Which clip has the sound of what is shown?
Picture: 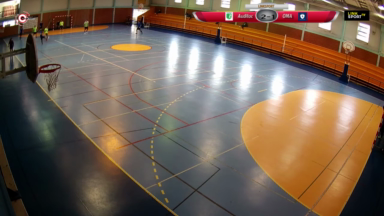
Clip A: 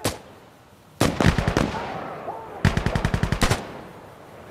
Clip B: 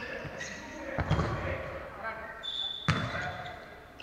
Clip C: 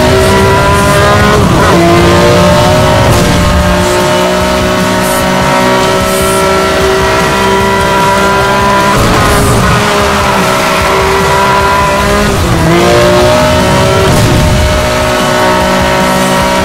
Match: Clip B